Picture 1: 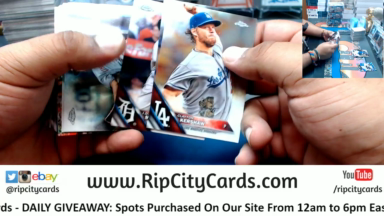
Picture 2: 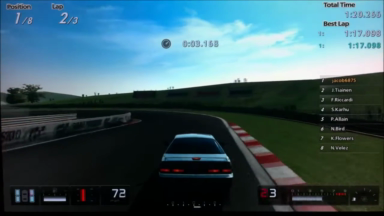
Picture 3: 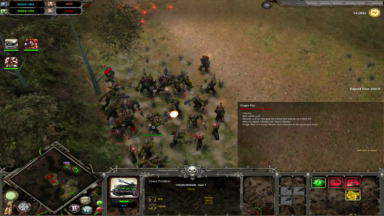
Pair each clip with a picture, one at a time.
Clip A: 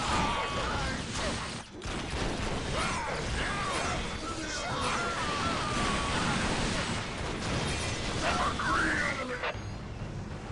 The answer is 3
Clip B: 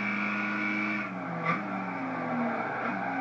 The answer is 2